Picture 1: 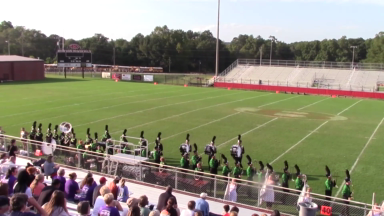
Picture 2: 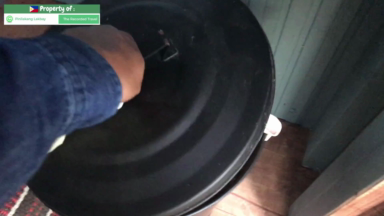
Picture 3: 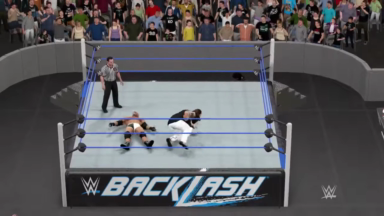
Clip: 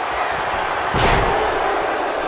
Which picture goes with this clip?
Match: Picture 3